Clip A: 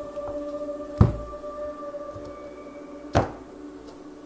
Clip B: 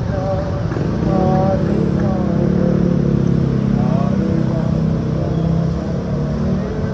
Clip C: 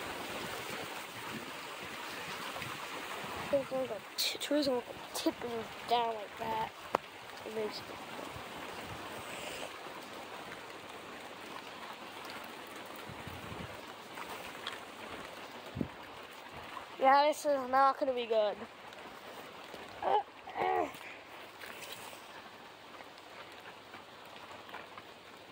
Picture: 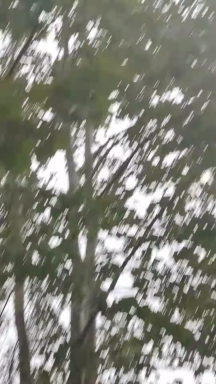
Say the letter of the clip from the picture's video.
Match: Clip C